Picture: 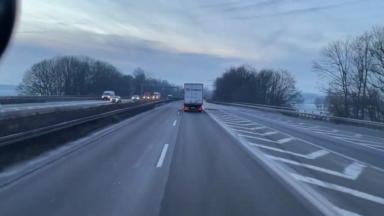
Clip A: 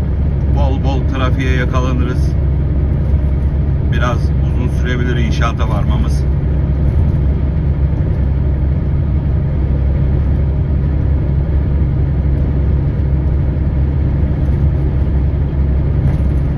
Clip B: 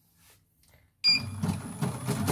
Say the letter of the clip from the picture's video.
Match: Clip A